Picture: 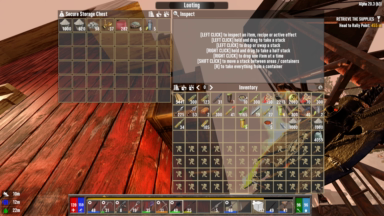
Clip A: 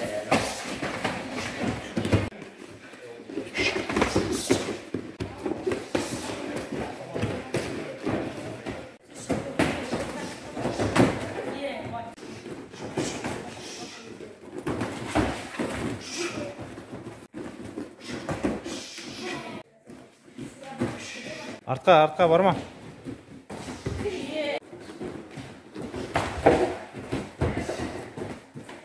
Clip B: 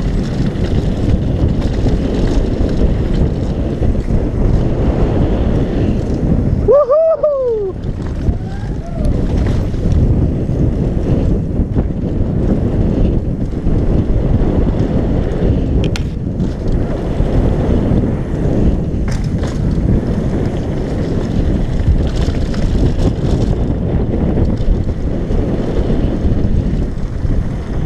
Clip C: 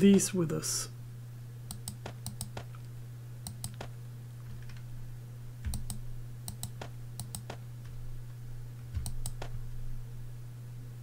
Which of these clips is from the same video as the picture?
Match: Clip C